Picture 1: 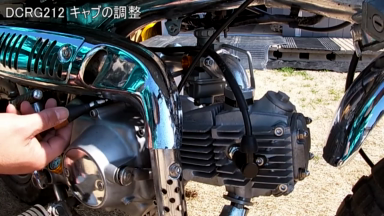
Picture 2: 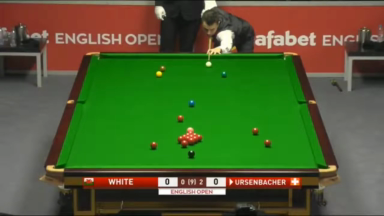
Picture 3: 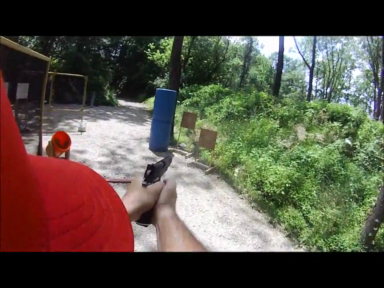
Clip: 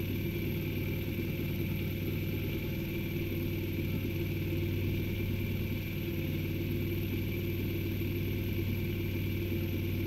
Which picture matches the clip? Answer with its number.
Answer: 1